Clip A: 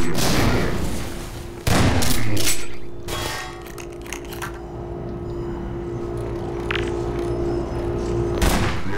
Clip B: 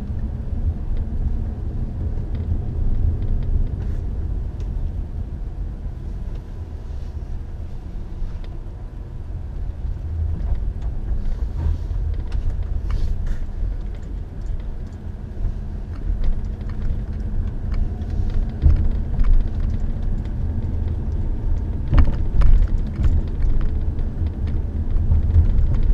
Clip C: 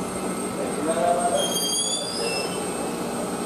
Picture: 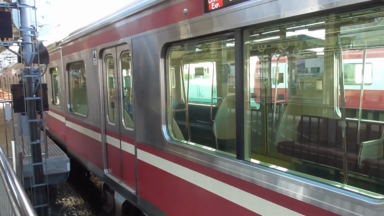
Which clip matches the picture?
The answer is C